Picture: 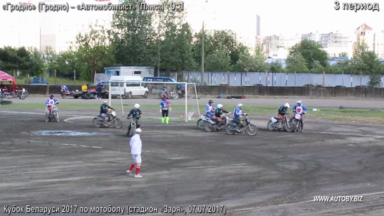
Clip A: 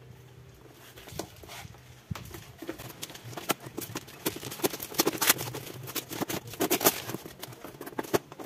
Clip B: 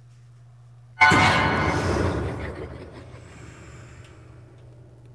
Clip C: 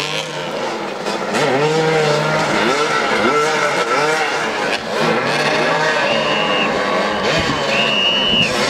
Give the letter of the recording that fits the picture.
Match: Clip C